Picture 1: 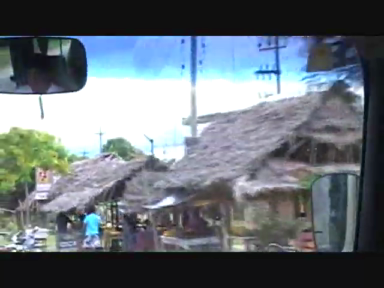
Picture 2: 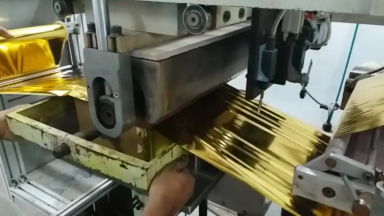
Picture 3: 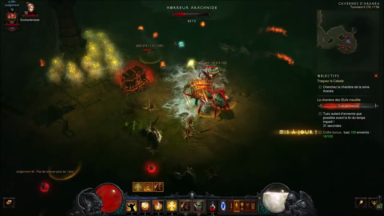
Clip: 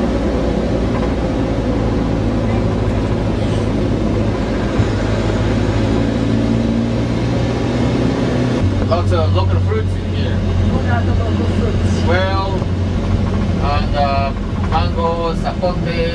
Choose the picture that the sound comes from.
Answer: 1